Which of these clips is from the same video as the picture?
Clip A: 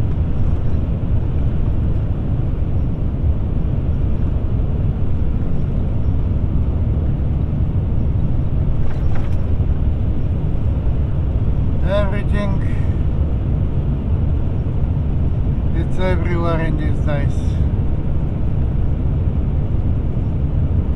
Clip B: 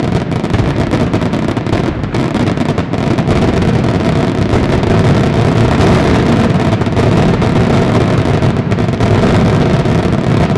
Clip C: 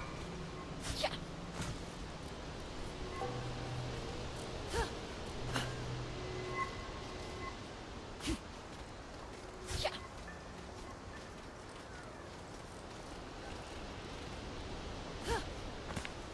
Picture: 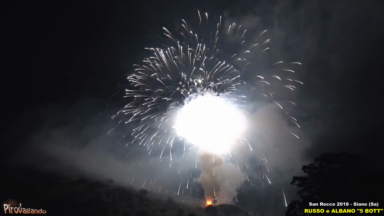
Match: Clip B